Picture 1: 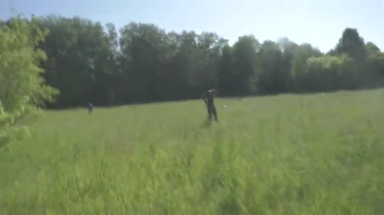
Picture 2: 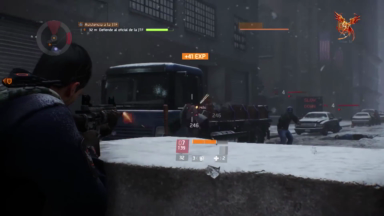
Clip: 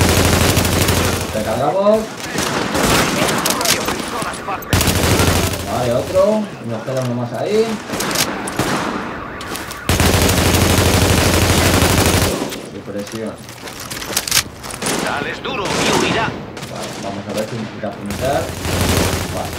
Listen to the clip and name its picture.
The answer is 2